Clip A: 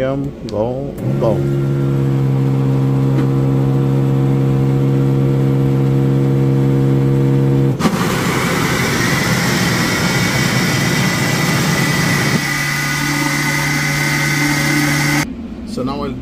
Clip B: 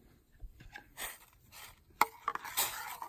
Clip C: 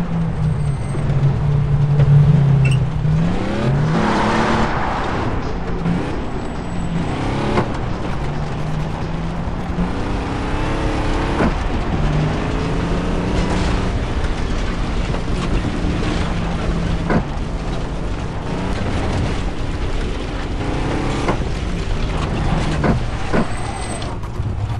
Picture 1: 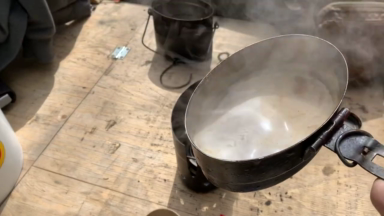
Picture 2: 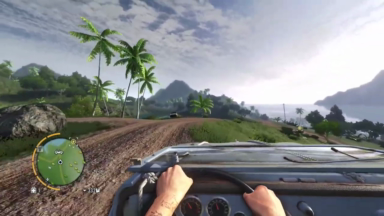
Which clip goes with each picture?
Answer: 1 B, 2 C